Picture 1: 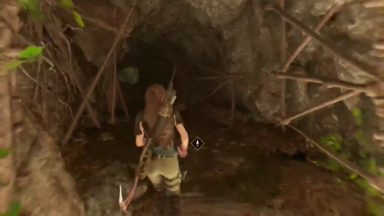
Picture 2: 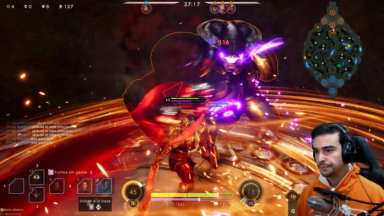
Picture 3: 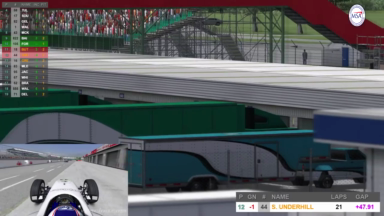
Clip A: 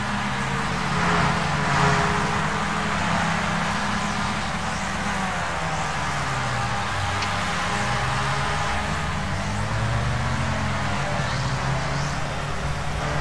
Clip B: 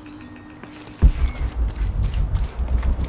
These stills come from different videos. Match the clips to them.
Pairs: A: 3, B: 1